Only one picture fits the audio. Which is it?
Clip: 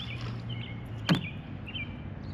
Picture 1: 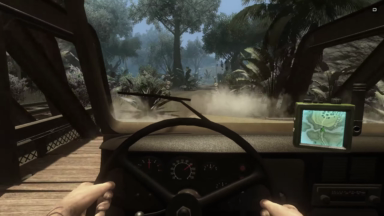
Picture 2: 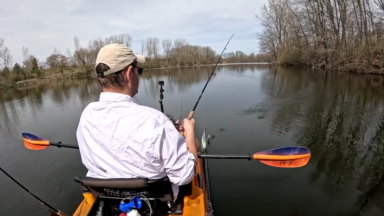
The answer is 2